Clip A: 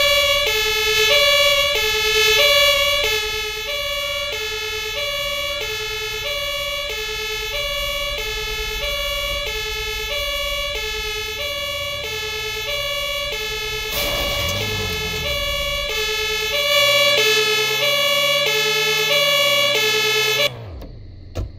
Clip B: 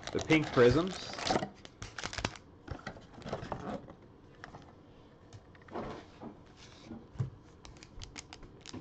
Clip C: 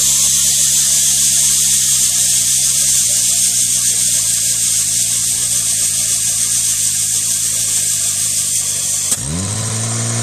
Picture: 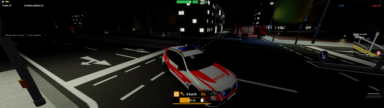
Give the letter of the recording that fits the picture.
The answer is A